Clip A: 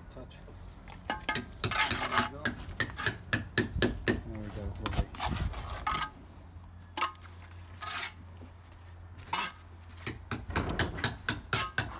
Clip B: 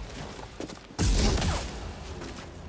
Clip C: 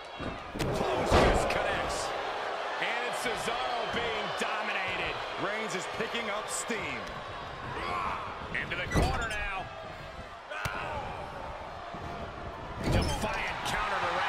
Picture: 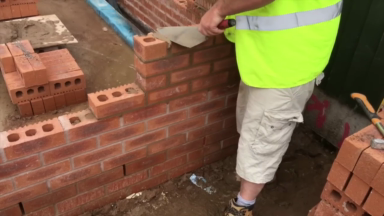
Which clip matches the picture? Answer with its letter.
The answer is A